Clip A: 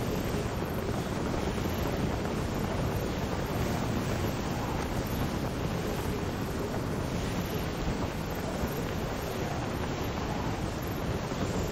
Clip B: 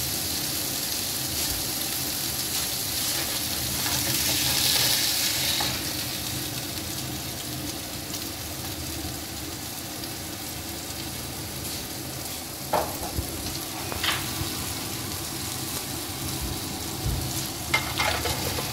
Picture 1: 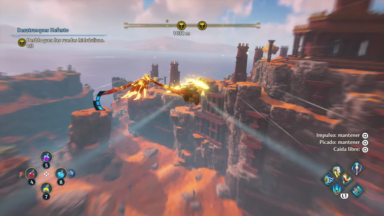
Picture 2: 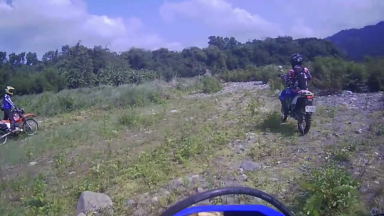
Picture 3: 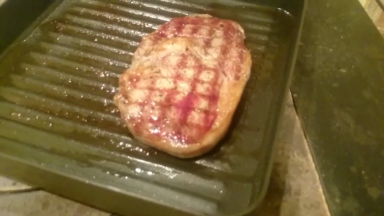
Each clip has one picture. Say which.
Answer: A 1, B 3